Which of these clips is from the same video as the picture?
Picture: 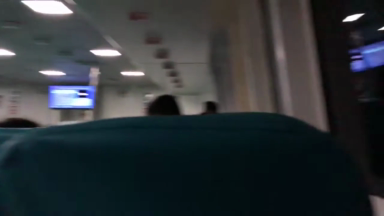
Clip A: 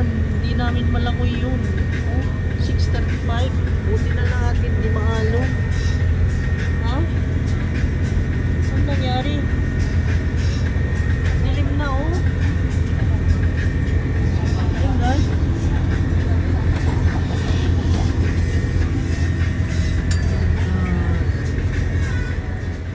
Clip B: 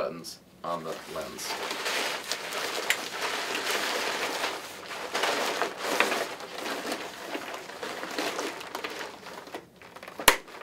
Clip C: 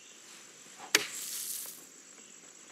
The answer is A